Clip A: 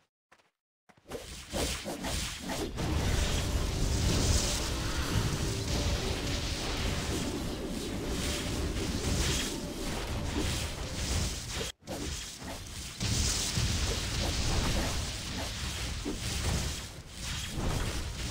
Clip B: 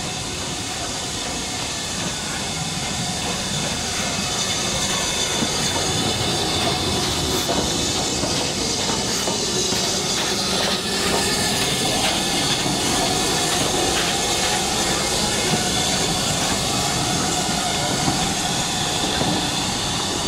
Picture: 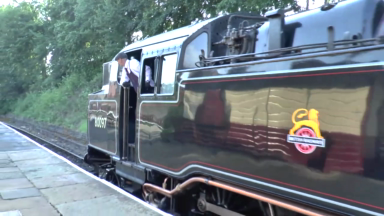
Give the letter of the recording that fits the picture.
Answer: B